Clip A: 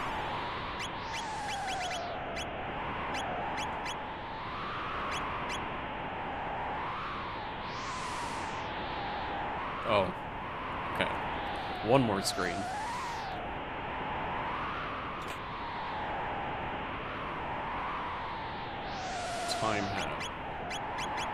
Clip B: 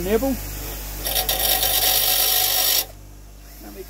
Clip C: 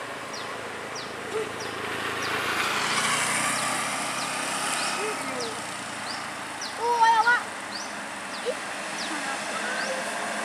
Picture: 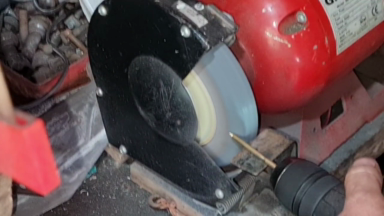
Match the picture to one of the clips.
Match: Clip B